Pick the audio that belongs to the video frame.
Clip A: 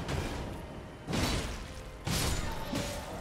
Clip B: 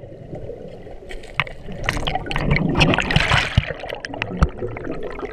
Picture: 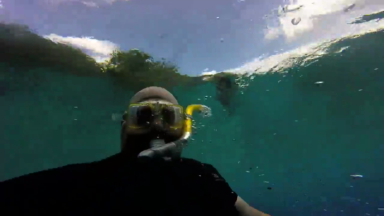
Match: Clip B